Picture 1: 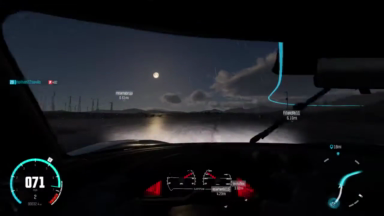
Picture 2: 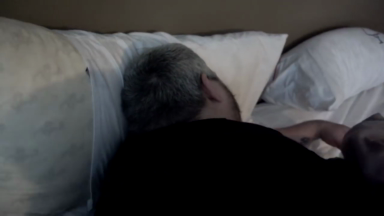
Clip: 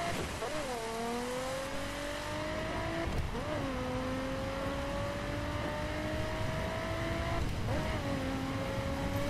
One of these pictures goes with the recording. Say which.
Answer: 1